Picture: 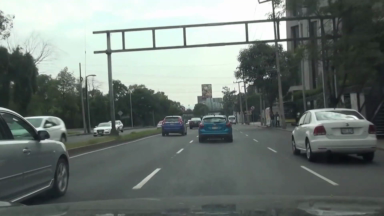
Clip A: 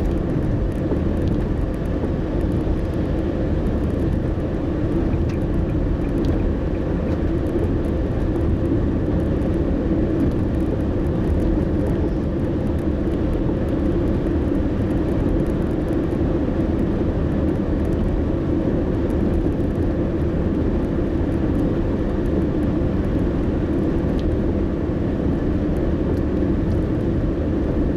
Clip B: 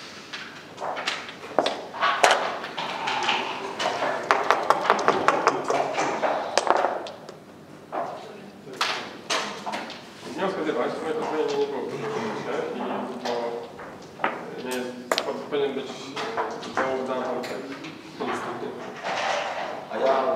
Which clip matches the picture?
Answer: A